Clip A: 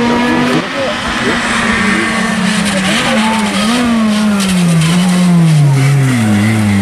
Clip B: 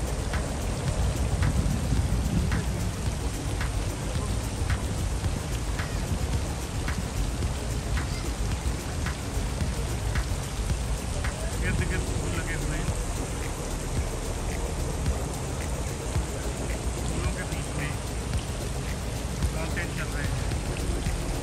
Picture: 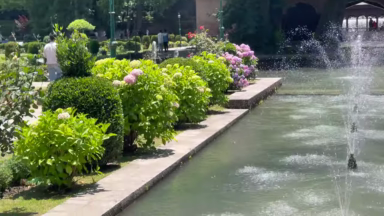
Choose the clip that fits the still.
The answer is B